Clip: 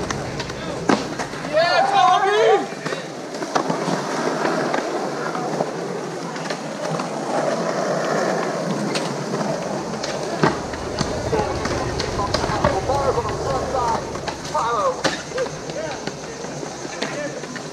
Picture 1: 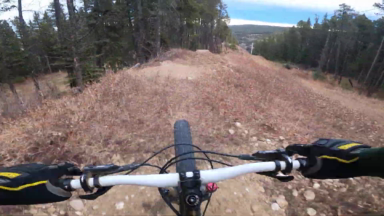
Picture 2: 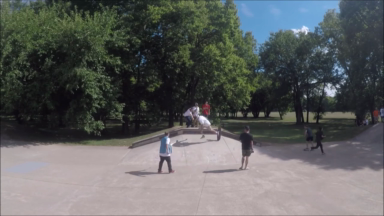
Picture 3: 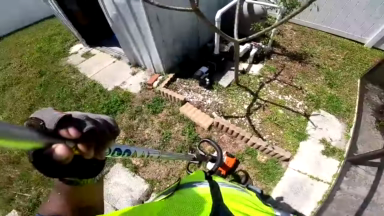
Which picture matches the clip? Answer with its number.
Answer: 2